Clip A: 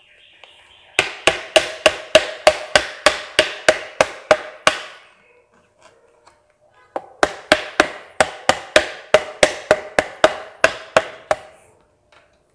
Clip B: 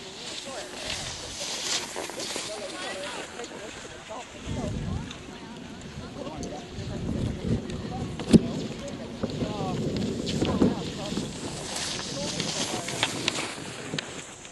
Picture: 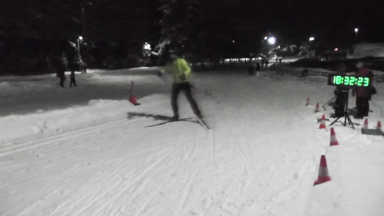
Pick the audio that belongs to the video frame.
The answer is B